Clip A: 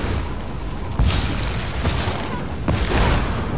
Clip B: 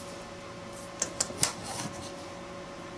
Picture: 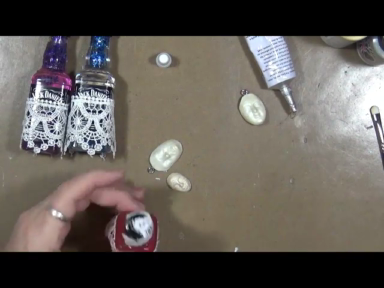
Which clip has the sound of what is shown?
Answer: B